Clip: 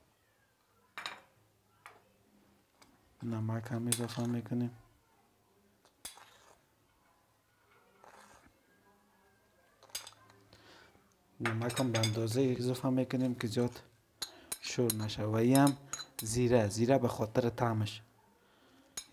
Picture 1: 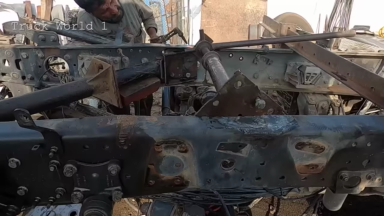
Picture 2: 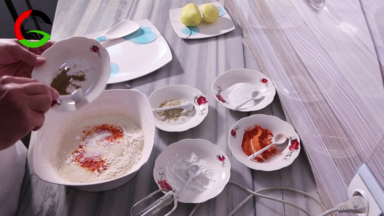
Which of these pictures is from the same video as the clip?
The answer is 2